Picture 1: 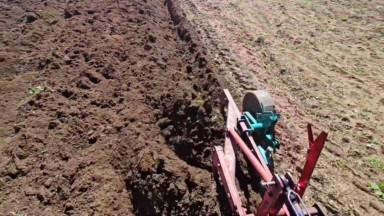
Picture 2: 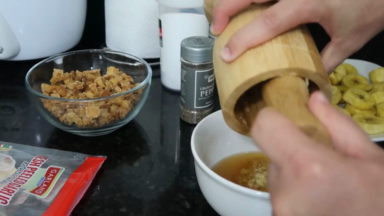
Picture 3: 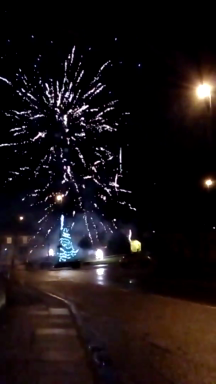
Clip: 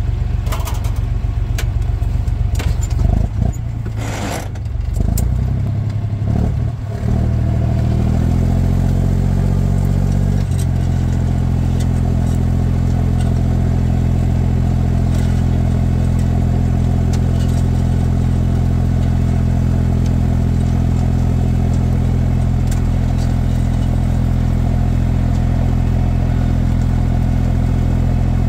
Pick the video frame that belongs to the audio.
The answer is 1